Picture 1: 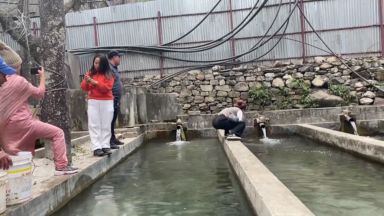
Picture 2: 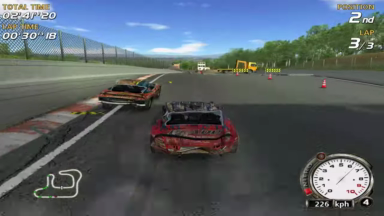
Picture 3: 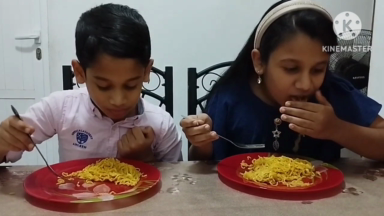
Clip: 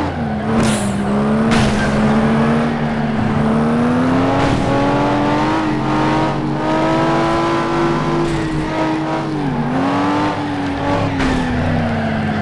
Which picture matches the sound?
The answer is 2